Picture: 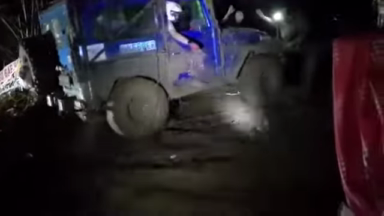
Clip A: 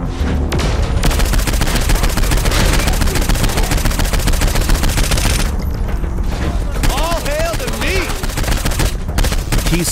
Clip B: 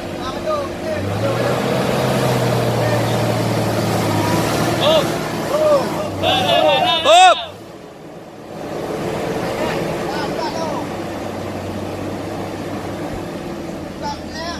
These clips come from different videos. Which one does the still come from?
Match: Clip B